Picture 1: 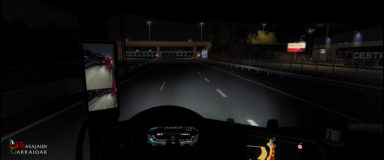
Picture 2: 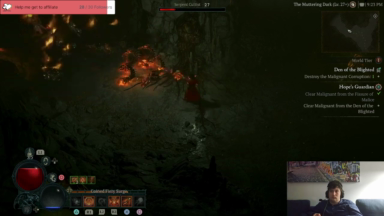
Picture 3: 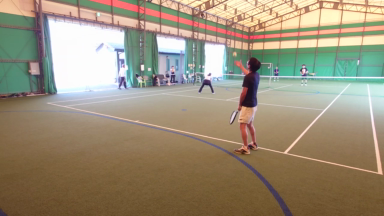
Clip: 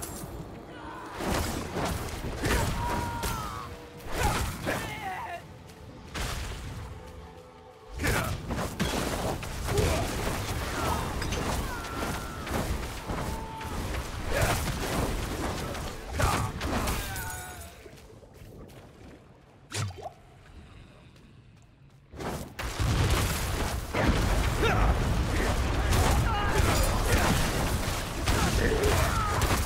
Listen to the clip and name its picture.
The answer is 2